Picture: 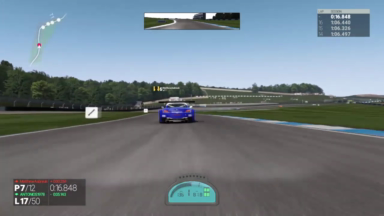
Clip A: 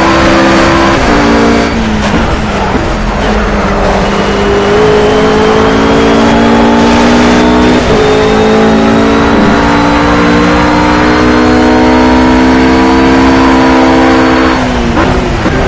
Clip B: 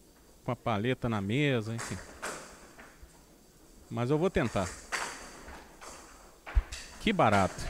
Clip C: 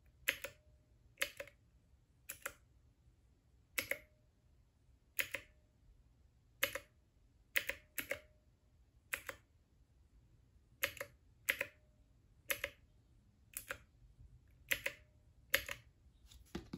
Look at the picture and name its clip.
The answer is A